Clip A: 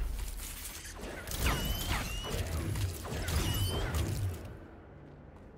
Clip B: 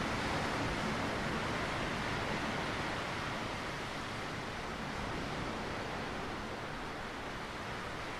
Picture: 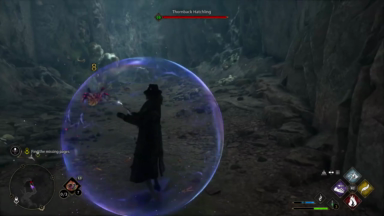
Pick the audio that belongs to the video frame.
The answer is A